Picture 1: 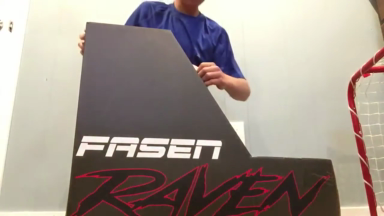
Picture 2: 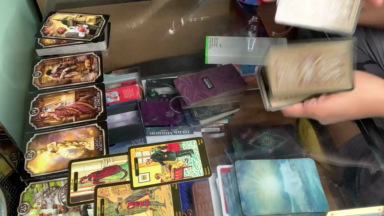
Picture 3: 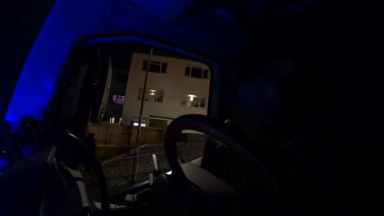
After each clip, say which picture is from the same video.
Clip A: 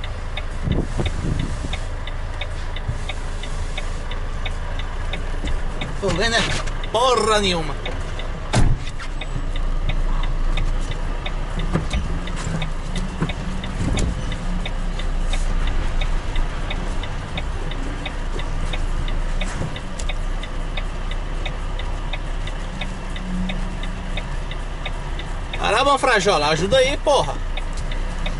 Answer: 3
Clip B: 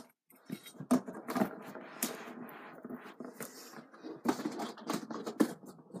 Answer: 1